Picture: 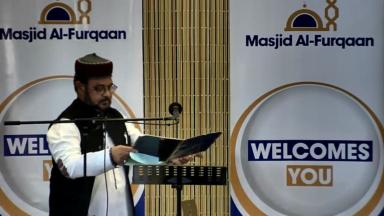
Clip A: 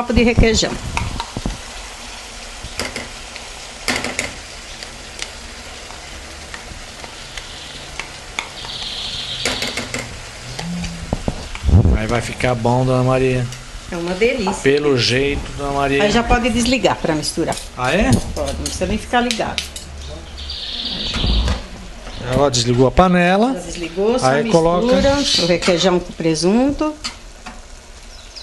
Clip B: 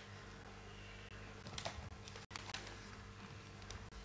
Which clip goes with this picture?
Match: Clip B